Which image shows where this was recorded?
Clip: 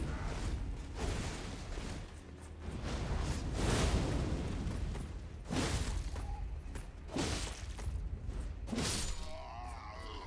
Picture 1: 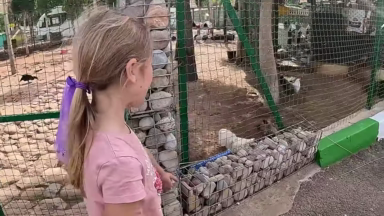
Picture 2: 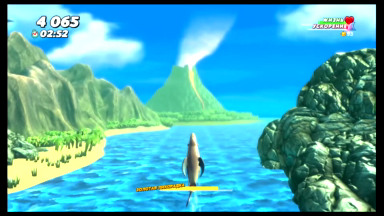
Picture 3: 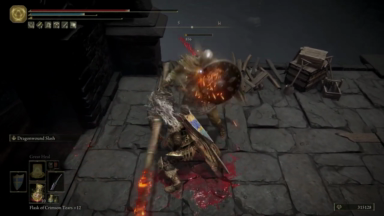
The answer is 3